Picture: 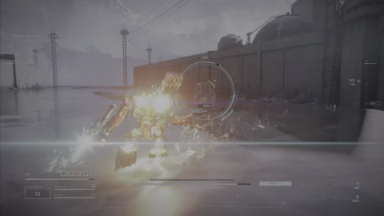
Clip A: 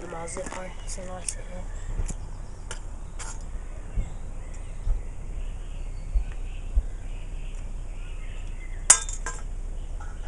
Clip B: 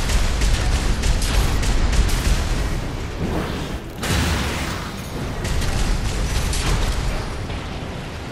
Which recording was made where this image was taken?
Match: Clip B